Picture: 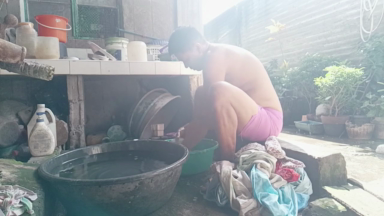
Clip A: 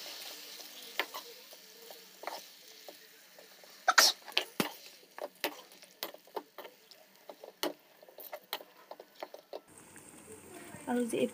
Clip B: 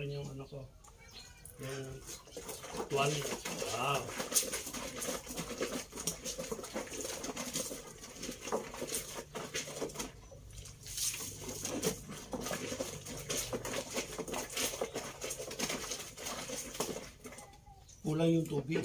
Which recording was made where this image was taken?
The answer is B